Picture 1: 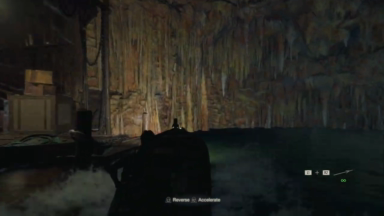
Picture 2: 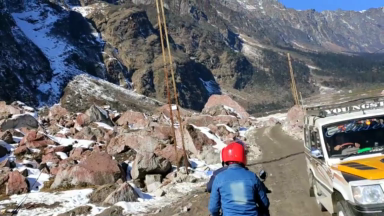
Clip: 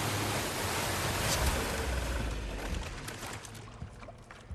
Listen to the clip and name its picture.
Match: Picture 1